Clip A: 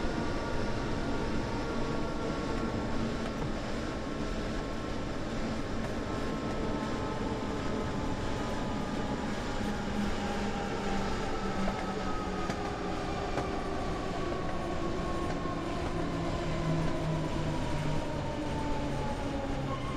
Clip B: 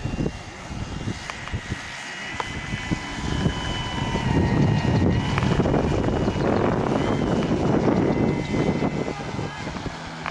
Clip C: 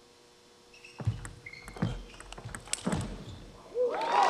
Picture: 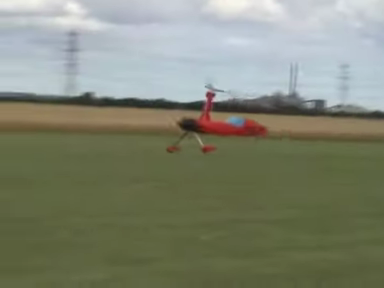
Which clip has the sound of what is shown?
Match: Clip B